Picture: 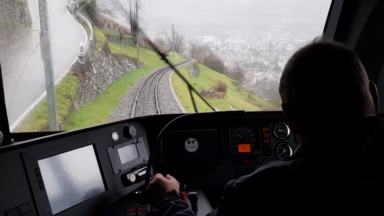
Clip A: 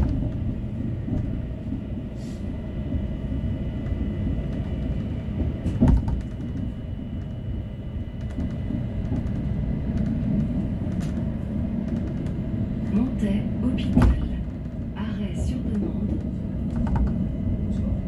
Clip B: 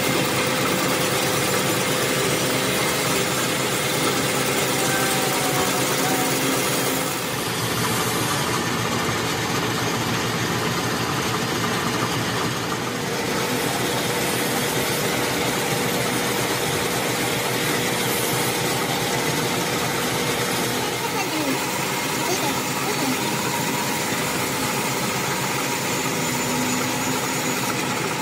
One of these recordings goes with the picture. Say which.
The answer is A